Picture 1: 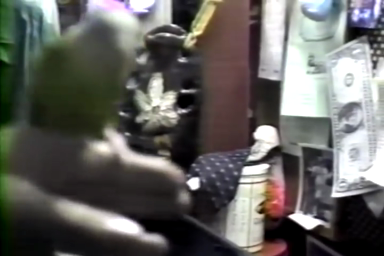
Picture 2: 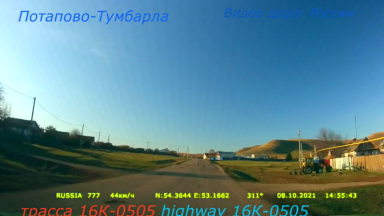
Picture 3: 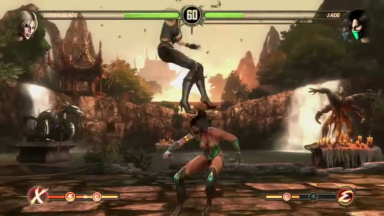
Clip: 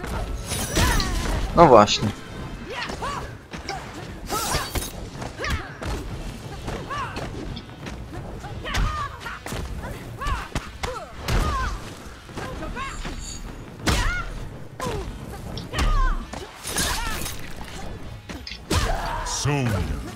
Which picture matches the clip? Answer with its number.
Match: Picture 3